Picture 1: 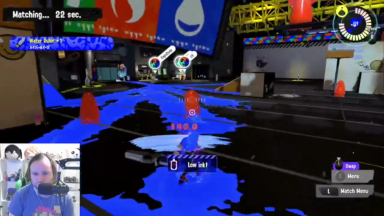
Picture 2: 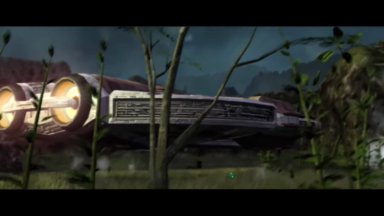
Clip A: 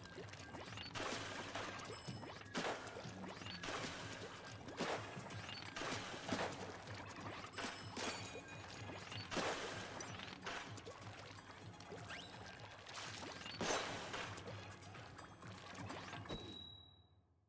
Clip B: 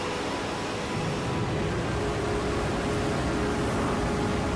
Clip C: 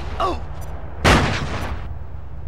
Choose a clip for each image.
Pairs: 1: A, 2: B